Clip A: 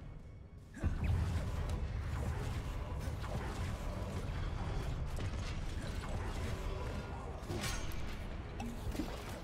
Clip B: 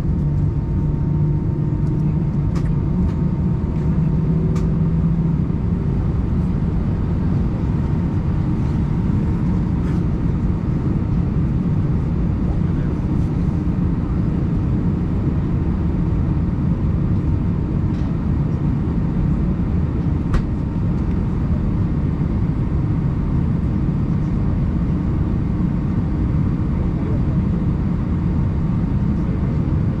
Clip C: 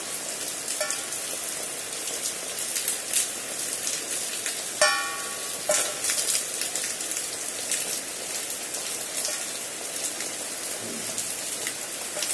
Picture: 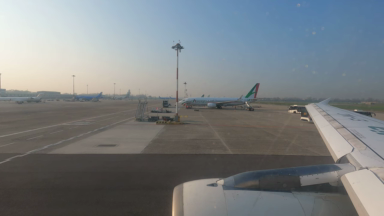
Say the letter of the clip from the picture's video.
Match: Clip B